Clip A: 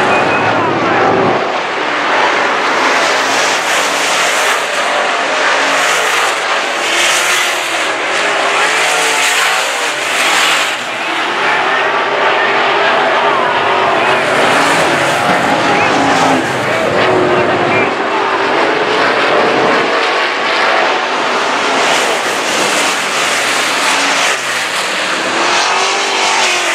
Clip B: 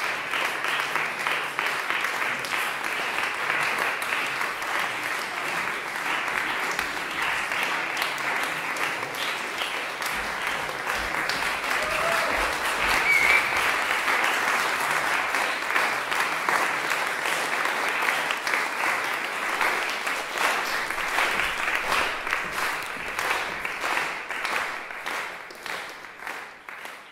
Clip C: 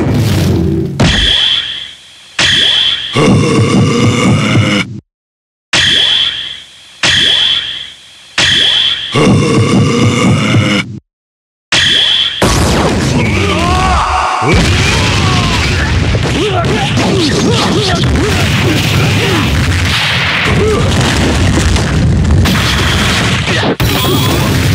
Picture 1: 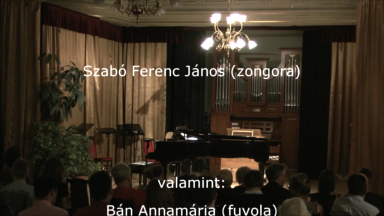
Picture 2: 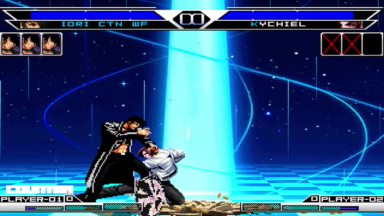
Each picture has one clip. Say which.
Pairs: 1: B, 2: C